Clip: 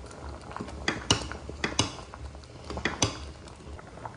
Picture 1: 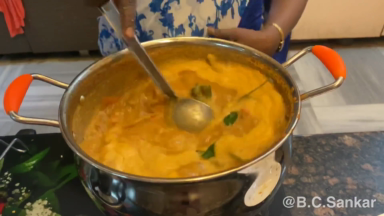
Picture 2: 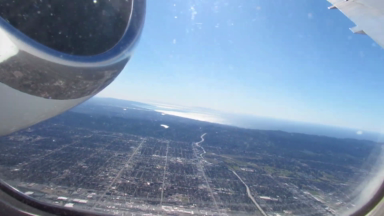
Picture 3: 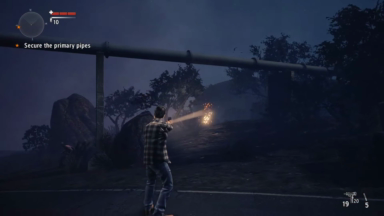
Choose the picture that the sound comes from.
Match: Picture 1